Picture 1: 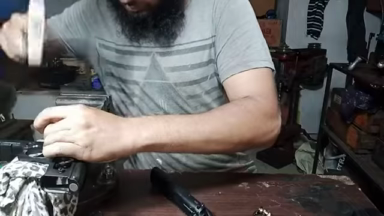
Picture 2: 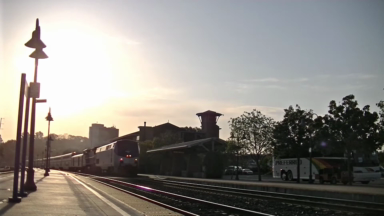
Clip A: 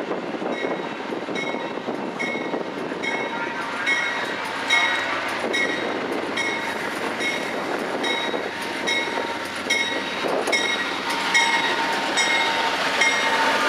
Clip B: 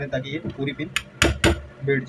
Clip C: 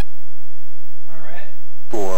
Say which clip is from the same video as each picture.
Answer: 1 B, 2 A